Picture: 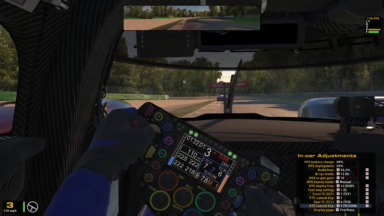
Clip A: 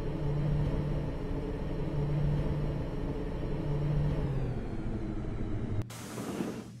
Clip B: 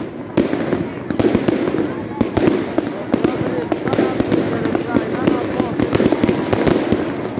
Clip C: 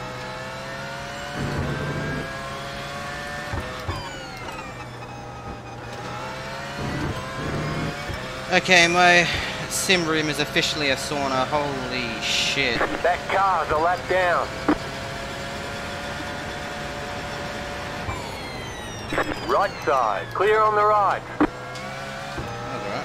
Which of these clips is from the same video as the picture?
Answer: C